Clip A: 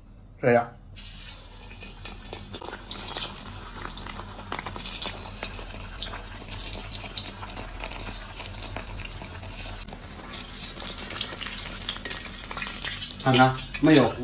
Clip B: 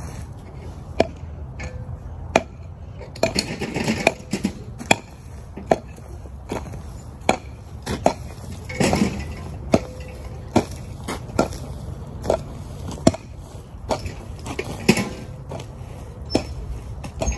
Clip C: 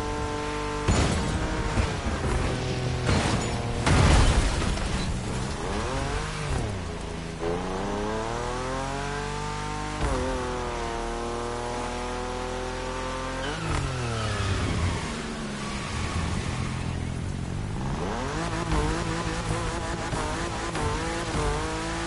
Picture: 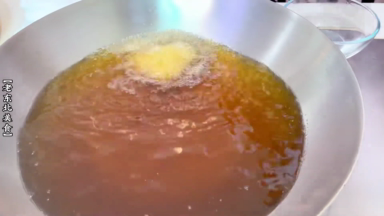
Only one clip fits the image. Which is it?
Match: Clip A